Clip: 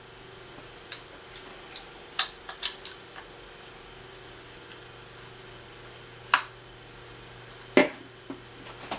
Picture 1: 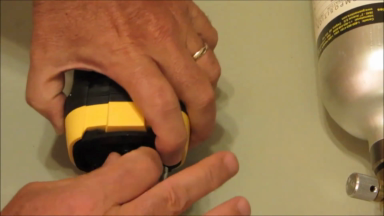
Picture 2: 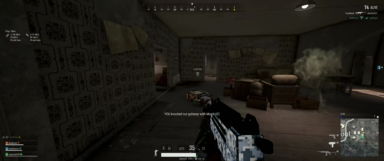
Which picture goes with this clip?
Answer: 1